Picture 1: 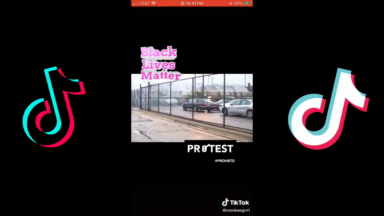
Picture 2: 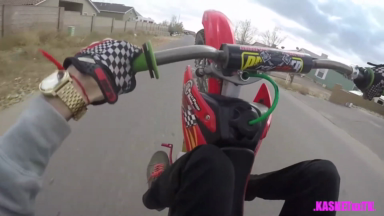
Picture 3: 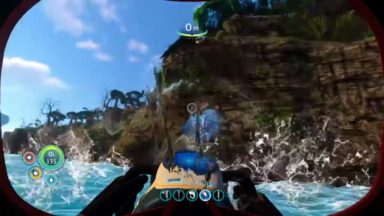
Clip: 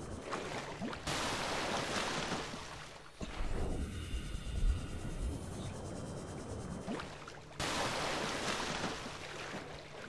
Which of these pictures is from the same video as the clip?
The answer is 3